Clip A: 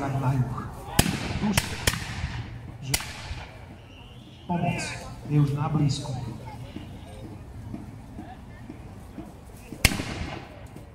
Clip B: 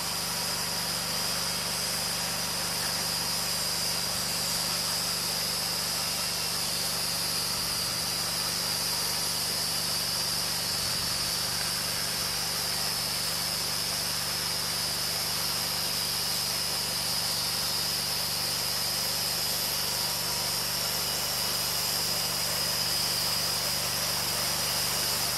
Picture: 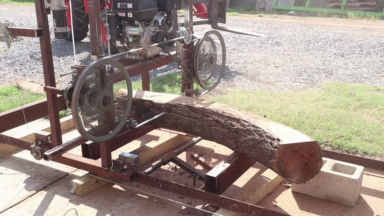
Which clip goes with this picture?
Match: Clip B